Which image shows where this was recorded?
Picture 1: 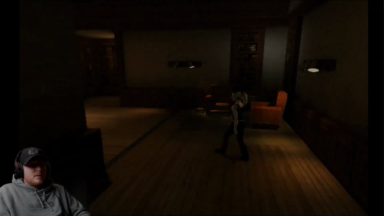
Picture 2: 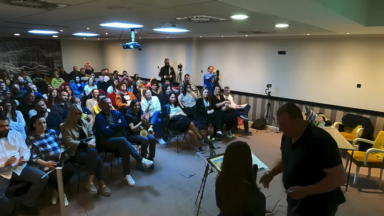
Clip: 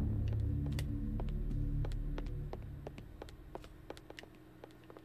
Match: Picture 1